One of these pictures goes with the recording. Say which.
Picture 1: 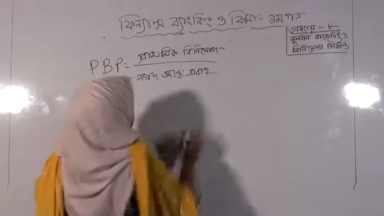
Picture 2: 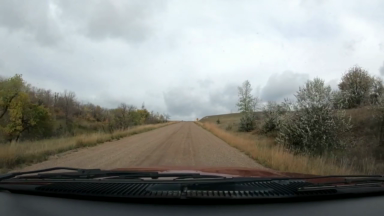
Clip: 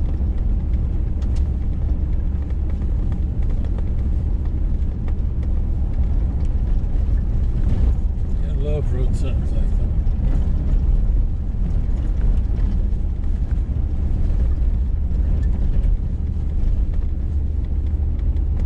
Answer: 2